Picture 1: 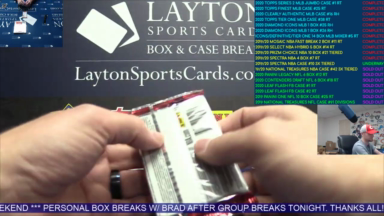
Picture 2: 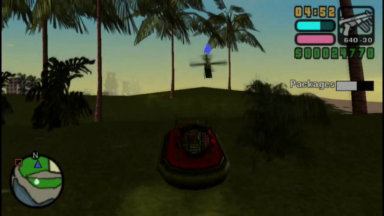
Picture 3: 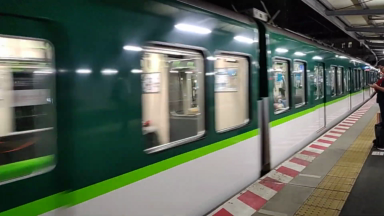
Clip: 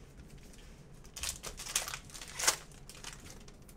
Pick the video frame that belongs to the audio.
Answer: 1